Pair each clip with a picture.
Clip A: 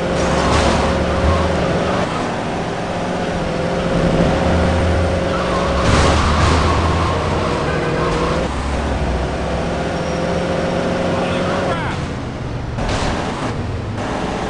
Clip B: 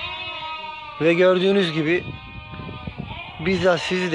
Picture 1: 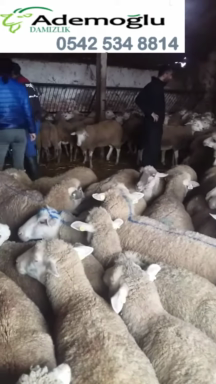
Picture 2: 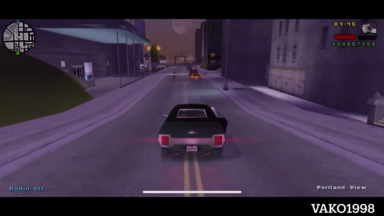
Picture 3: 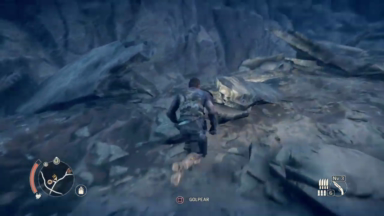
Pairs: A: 2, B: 1